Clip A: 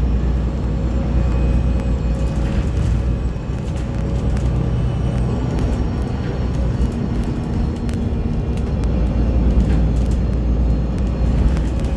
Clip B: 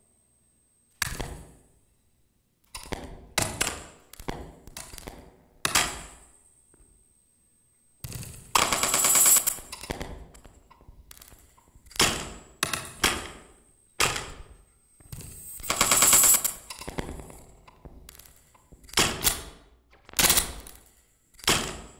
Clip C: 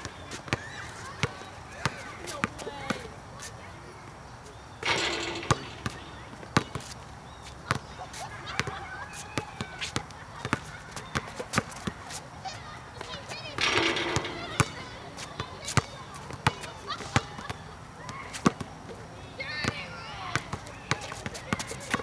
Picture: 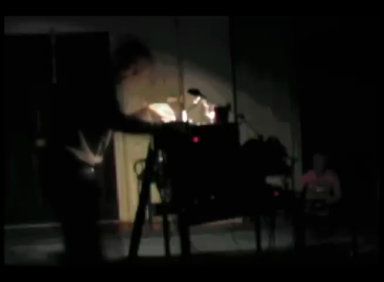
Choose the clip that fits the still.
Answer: B